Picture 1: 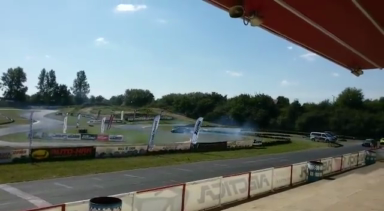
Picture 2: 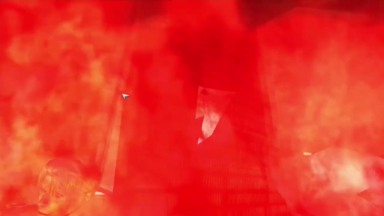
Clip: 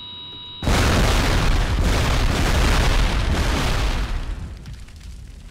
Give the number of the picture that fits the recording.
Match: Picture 2